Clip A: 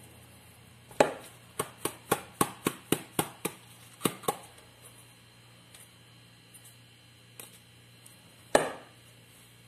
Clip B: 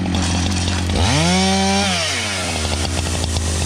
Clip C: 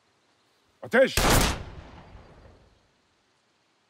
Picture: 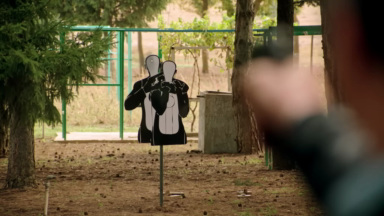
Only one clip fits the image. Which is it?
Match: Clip C